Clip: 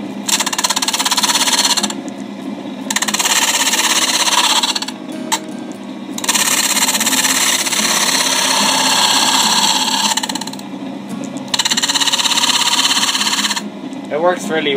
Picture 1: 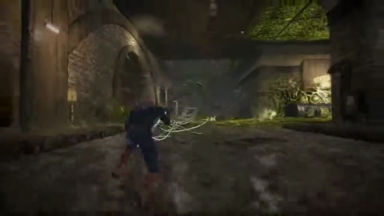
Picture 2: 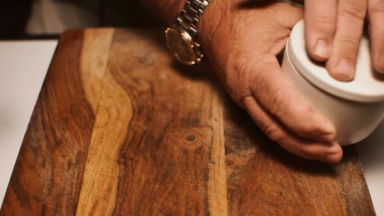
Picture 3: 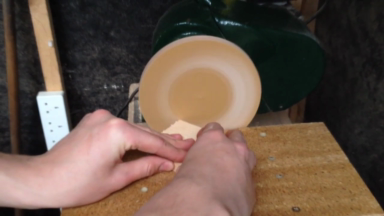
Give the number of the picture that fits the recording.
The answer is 3